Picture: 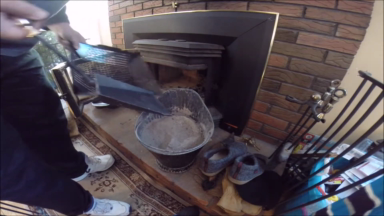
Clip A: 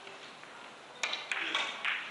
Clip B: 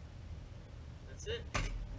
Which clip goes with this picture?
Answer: B